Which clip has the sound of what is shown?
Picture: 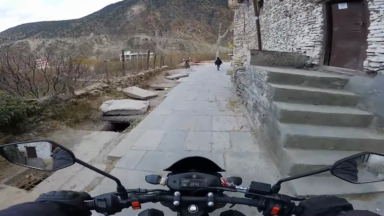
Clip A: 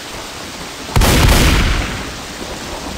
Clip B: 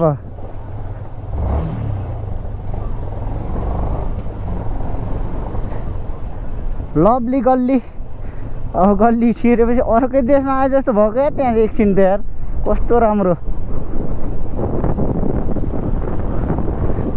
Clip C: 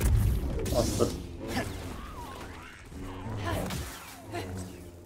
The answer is B